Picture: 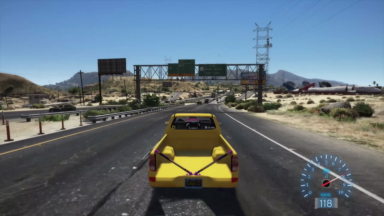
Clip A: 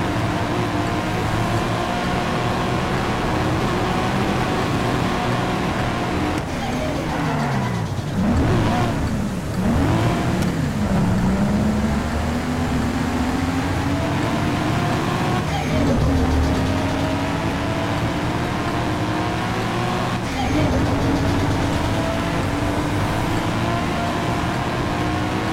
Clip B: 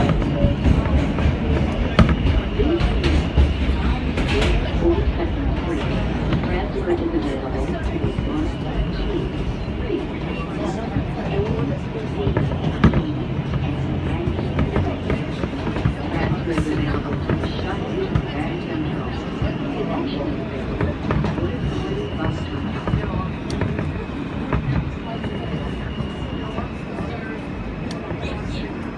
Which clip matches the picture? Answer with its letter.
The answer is A